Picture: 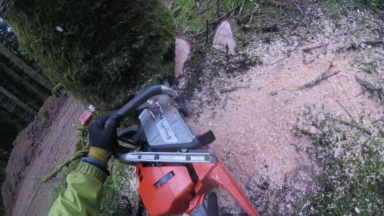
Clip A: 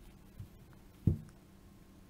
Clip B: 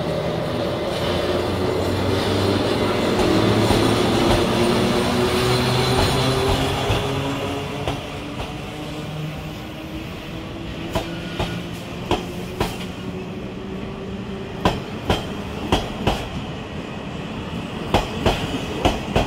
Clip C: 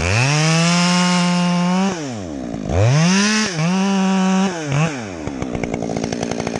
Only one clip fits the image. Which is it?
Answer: C